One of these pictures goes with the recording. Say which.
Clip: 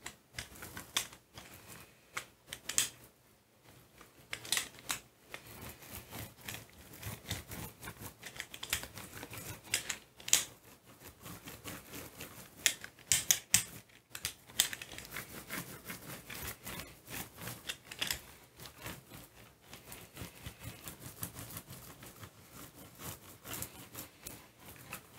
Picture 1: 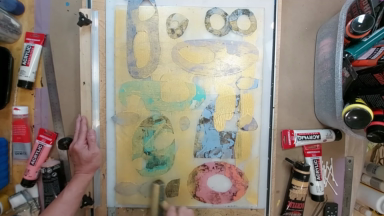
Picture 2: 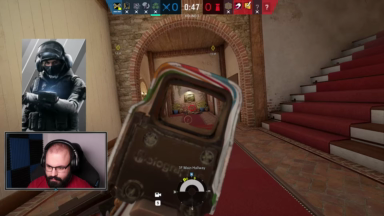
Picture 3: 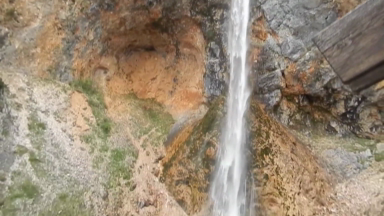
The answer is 1